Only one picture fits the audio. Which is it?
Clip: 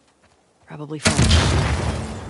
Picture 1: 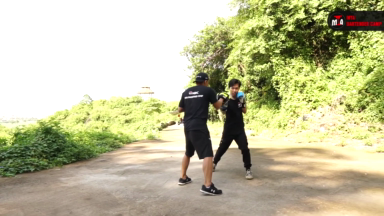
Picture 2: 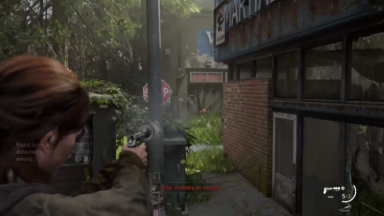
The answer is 2